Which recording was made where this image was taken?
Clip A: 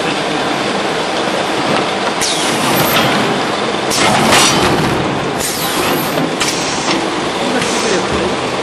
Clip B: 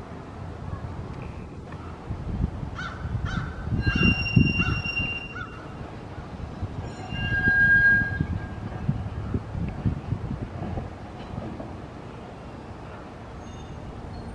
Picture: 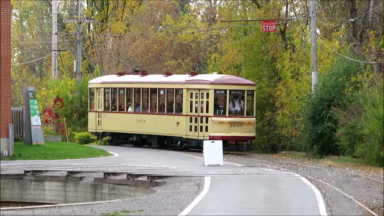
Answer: B